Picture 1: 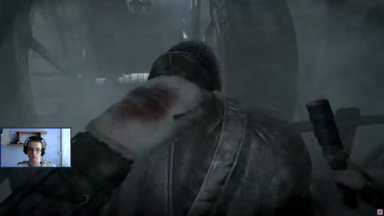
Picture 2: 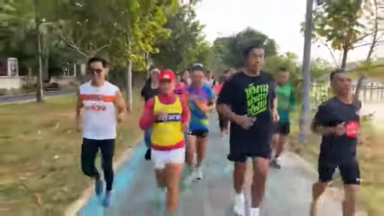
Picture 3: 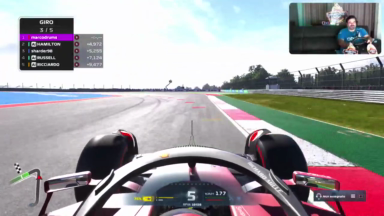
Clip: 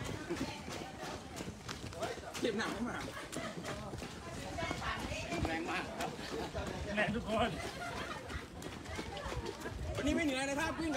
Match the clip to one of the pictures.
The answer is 2